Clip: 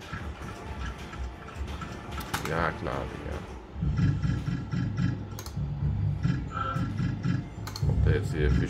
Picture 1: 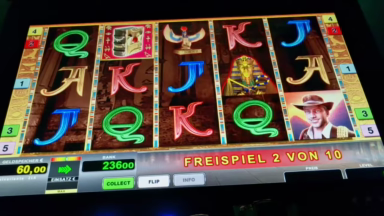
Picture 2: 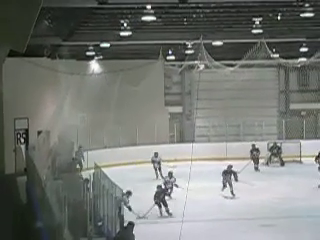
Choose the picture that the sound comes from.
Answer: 1